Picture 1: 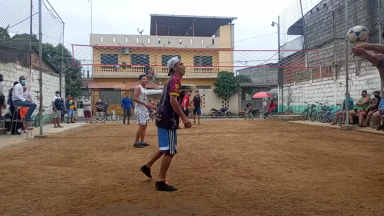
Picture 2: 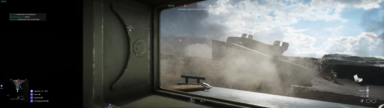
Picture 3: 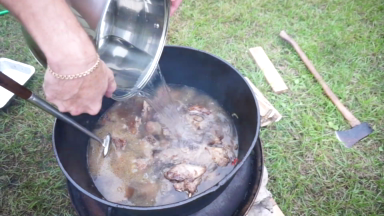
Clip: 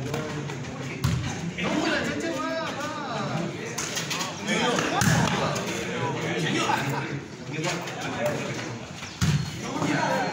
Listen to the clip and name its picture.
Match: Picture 1